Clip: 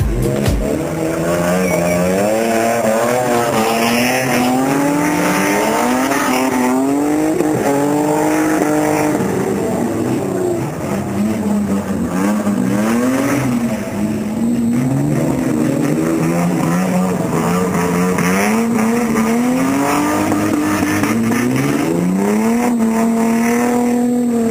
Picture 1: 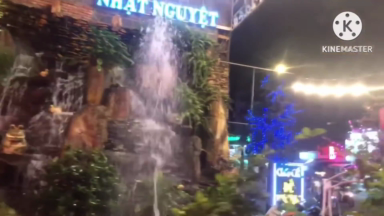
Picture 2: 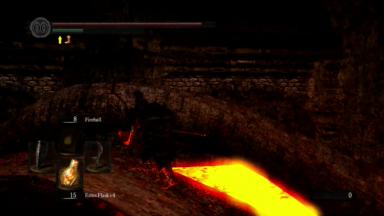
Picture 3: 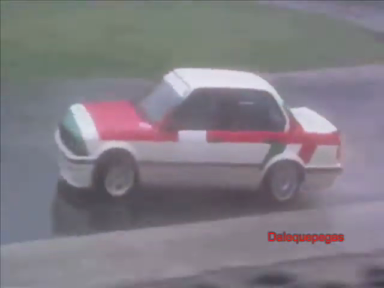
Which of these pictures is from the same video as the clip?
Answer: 3